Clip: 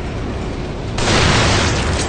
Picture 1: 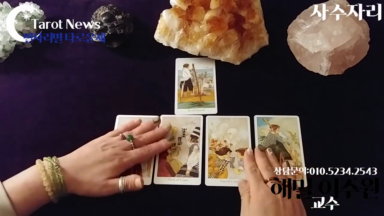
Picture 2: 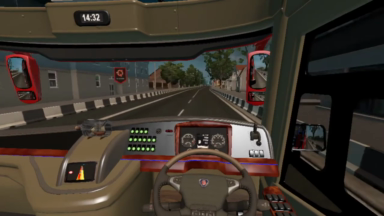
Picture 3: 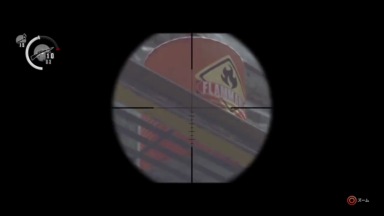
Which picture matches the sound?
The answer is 3